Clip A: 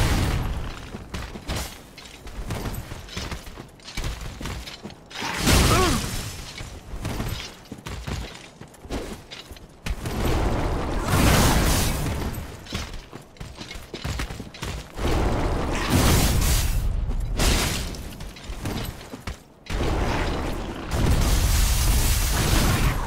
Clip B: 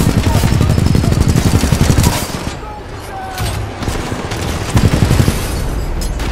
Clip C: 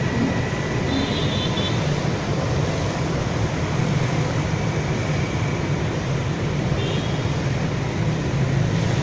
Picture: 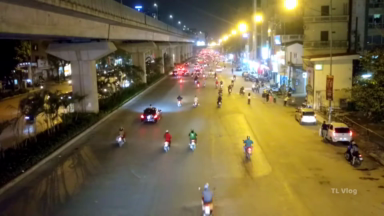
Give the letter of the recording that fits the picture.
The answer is C